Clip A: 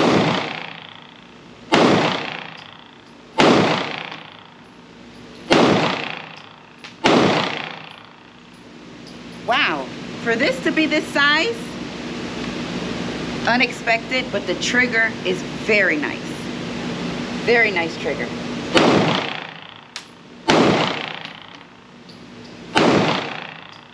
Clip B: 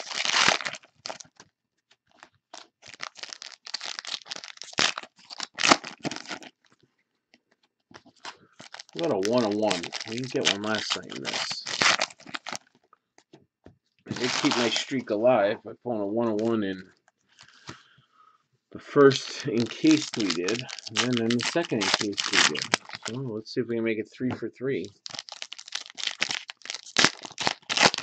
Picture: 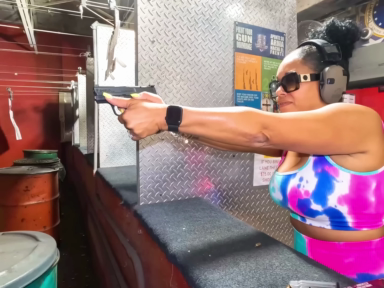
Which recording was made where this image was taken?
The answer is A